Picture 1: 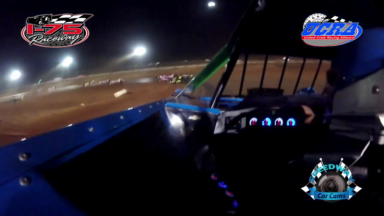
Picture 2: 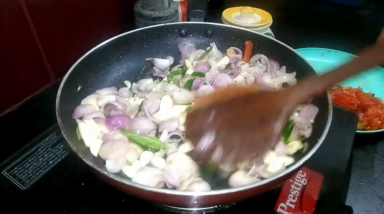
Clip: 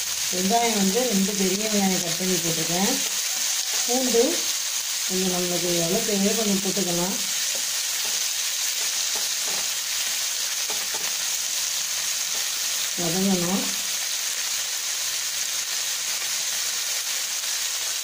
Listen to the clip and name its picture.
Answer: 2